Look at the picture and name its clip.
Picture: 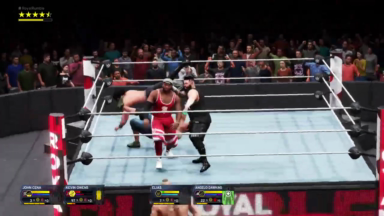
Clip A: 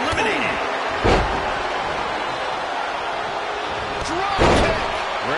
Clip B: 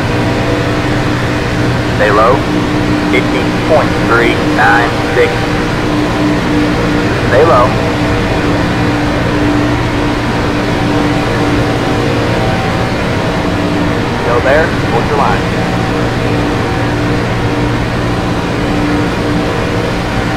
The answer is A